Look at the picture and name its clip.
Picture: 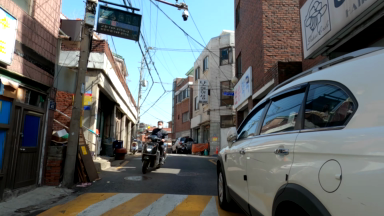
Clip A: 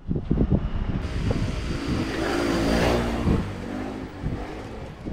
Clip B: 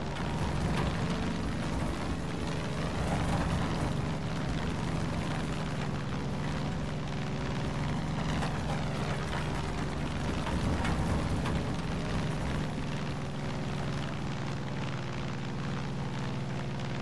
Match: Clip A